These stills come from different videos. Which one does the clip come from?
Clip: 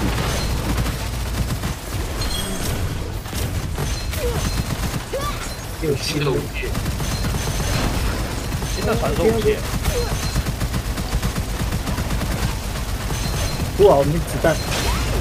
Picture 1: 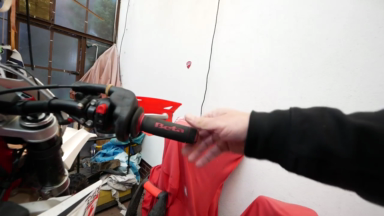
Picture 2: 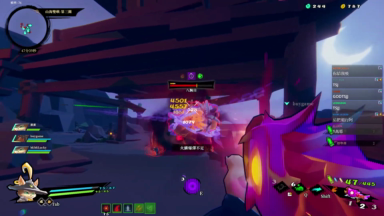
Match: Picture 2